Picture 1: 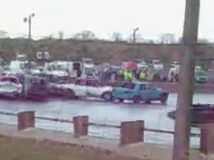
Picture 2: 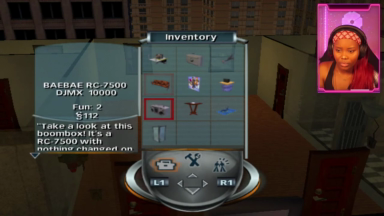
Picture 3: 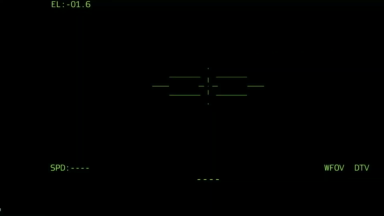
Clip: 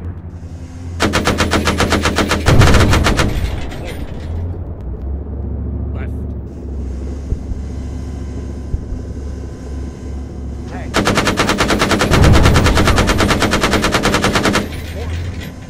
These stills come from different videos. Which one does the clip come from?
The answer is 3